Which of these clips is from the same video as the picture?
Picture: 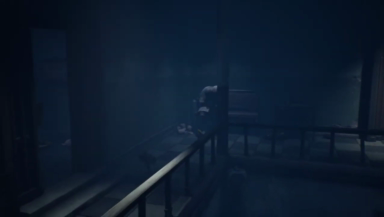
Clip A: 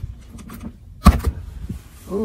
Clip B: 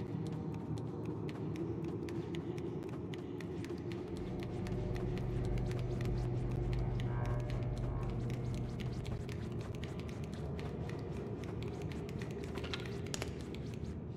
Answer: B